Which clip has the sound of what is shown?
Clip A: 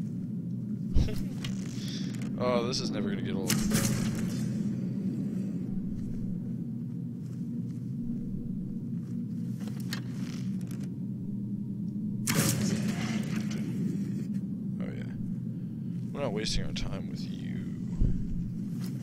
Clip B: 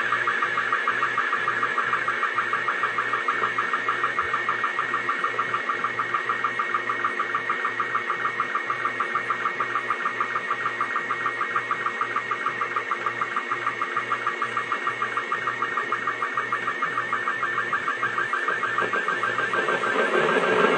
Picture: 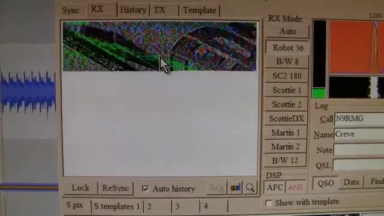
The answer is B